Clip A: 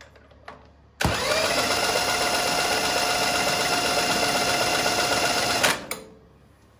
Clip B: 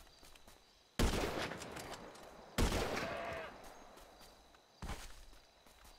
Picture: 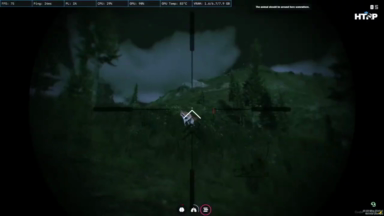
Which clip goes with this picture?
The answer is B